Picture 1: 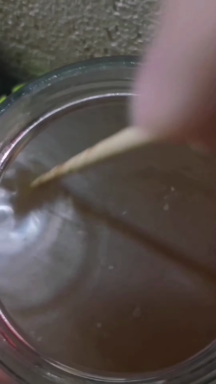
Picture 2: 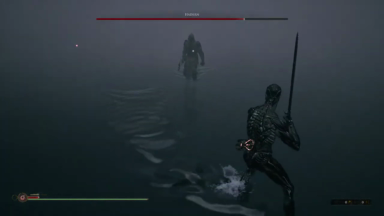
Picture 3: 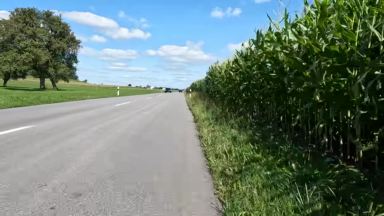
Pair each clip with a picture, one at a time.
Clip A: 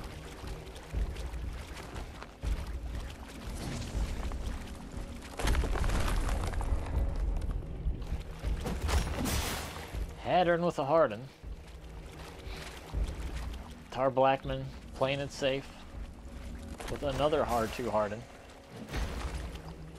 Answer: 2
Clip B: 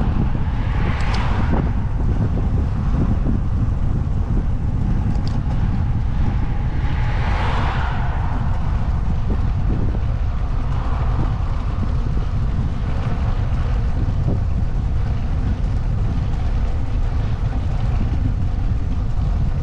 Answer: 3